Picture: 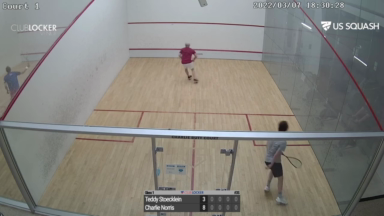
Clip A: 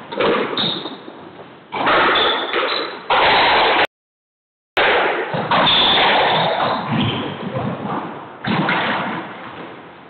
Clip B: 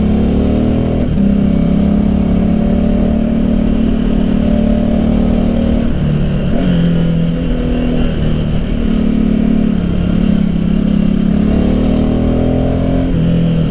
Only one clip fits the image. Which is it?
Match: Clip A